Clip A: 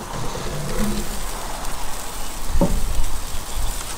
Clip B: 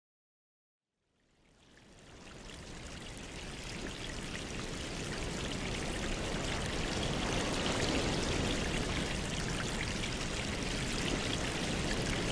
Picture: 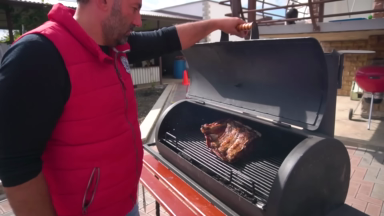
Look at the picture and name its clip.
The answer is A